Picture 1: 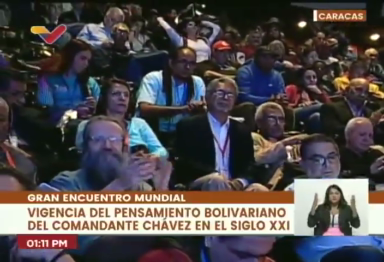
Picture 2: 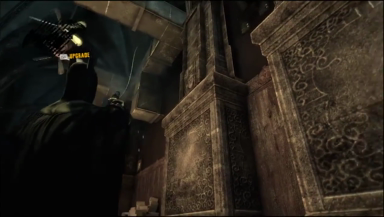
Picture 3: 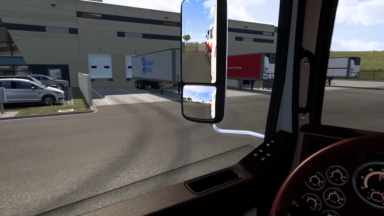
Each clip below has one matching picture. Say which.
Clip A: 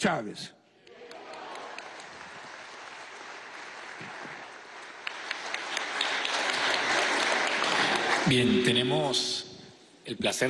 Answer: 1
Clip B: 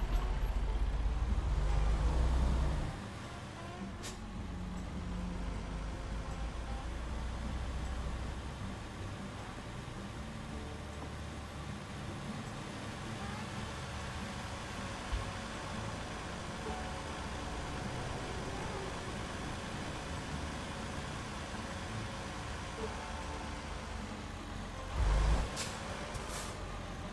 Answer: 3